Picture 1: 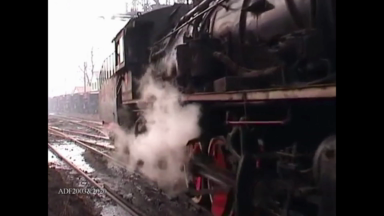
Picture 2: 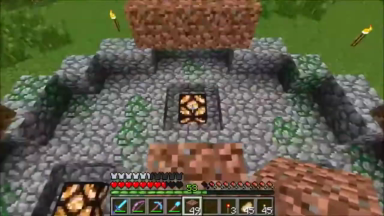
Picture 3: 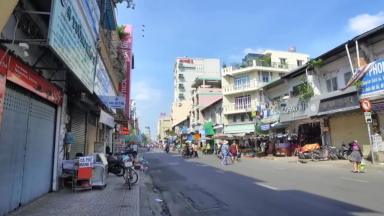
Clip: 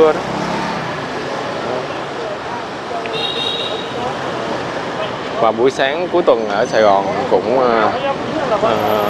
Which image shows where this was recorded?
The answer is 3